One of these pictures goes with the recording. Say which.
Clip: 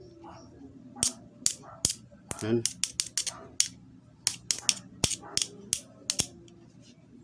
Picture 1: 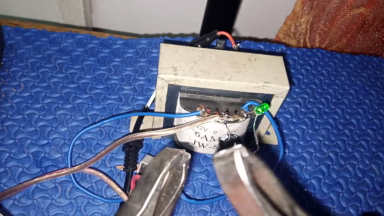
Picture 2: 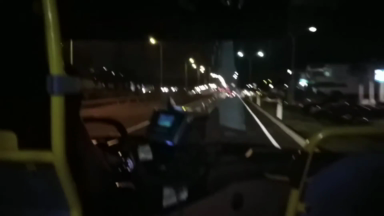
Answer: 1